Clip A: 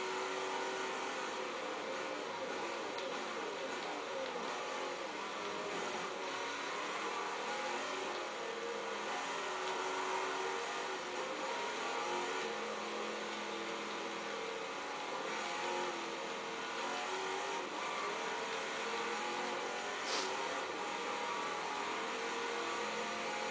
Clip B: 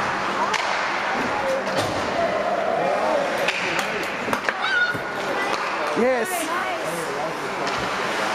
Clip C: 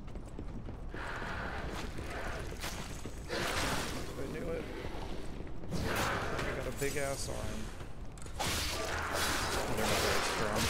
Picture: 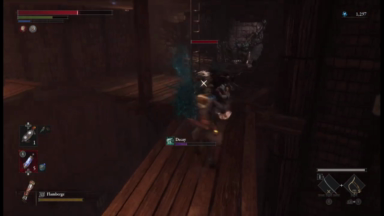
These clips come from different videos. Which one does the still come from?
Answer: C